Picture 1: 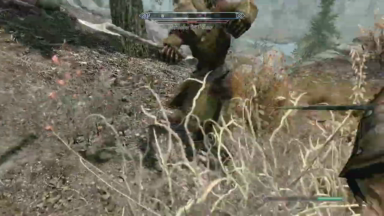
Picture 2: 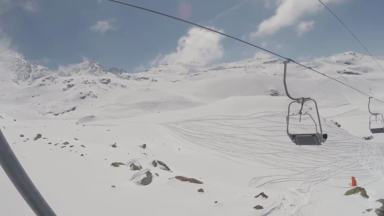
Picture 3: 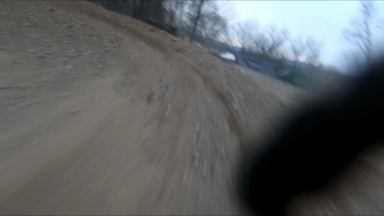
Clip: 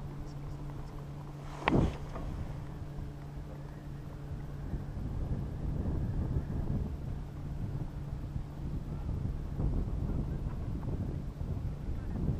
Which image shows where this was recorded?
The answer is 2